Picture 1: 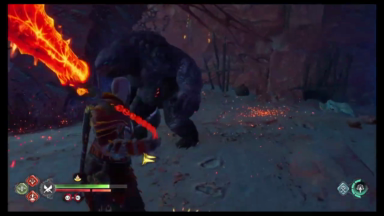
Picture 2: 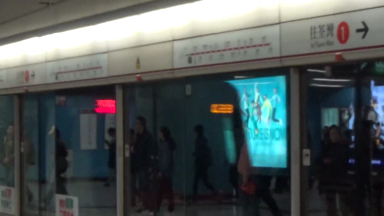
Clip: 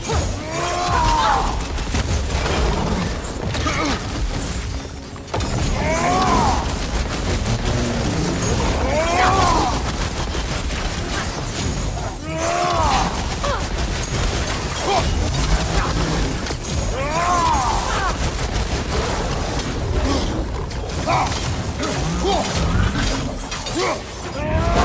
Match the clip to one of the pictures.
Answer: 1